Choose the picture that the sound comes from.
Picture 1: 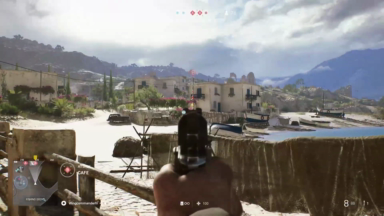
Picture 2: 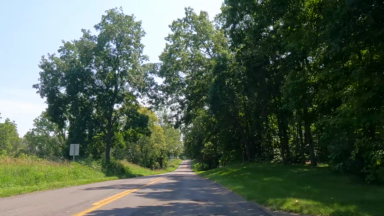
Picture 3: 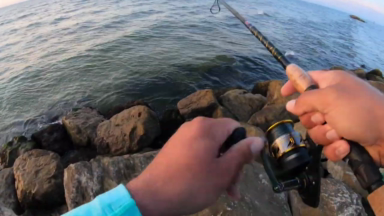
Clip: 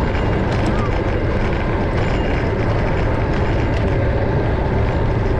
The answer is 2